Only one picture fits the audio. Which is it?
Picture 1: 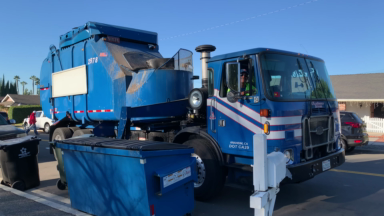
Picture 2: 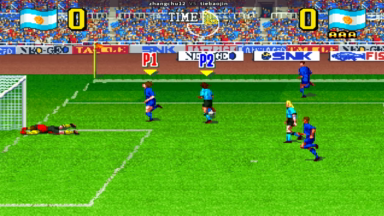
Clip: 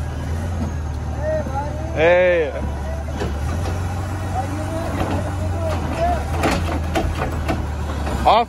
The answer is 1